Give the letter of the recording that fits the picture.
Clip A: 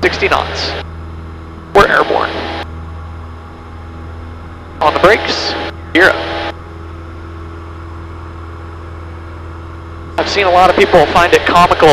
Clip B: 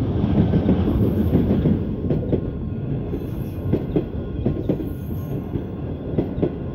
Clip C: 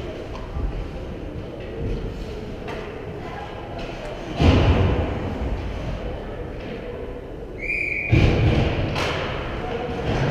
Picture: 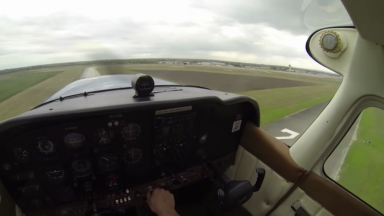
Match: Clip A